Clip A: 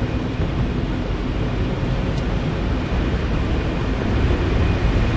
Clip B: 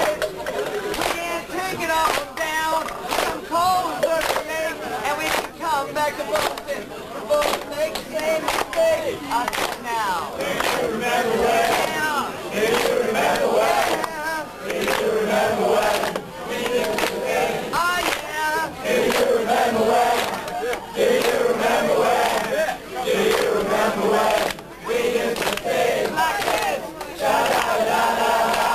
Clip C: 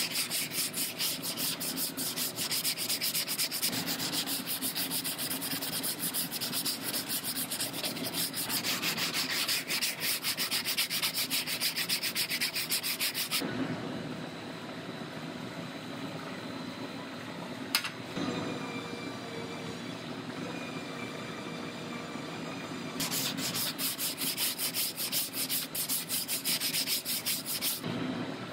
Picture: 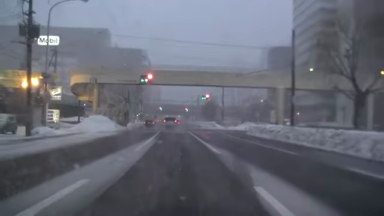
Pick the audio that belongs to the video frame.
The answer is A